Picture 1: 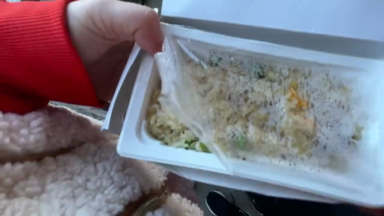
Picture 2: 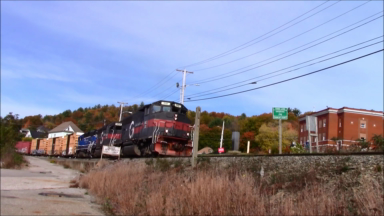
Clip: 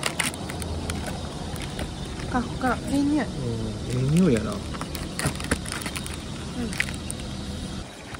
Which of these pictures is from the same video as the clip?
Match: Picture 1